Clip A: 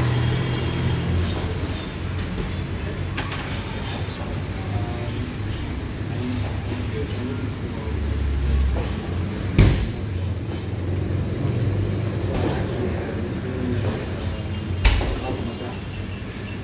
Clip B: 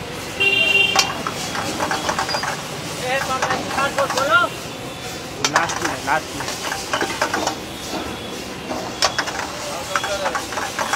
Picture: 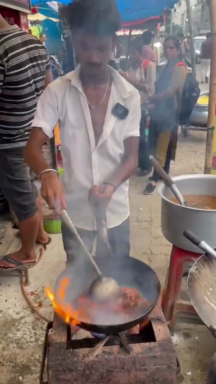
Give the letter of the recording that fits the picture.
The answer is B